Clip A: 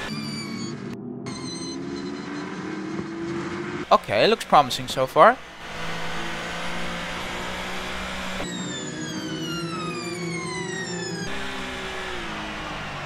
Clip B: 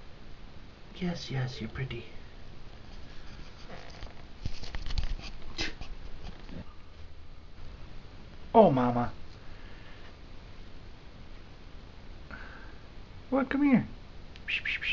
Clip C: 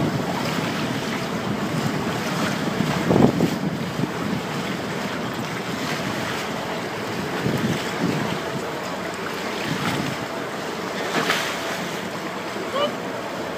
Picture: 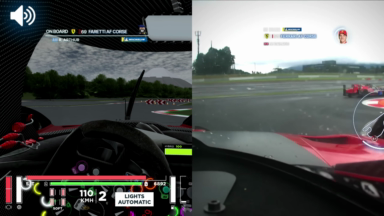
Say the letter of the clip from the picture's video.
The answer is A